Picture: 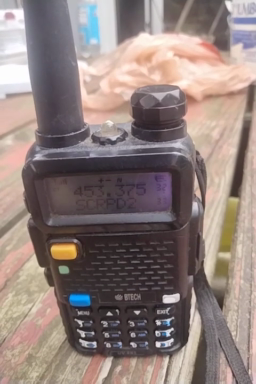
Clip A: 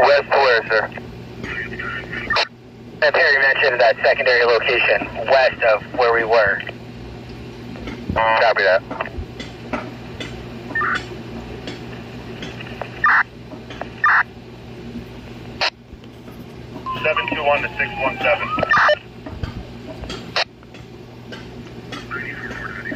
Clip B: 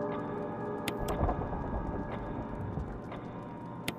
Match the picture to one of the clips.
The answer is A